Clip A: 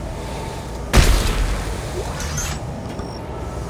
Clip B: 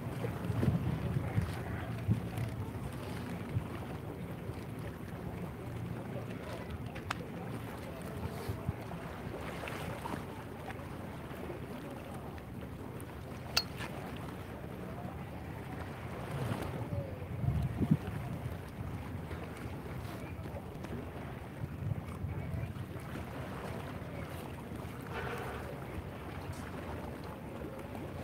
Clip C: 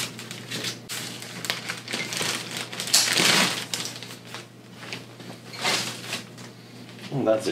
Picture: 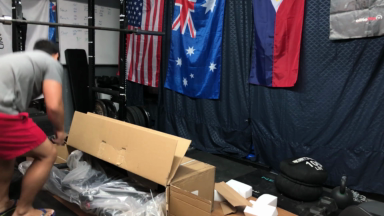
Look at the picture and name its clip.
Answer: C